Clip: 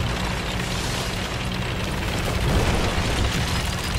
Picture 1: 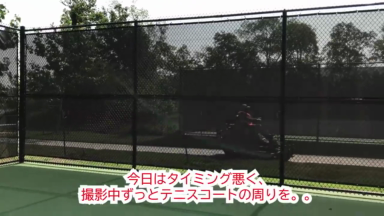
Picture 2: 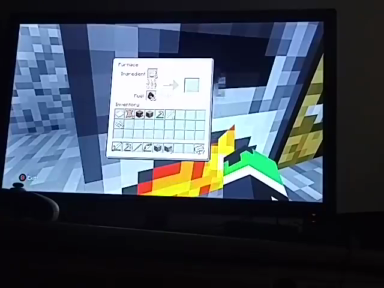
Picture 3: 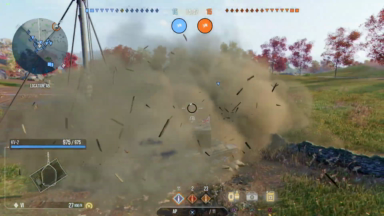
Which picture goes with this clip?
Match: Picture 3